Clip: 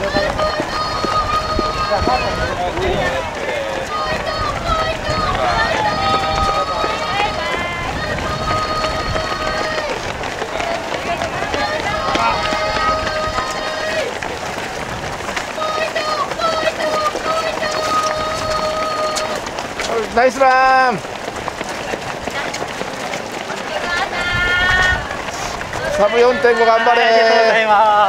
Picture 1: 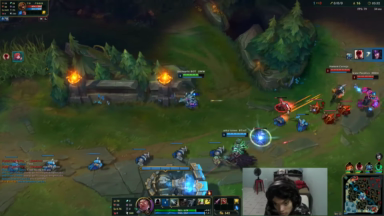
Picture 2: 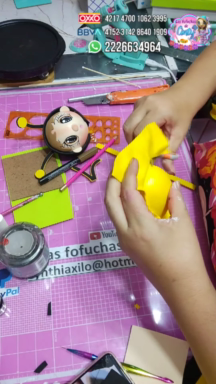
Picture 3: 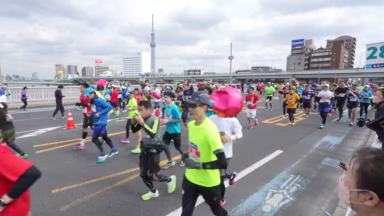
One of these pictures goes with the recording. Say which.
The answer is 3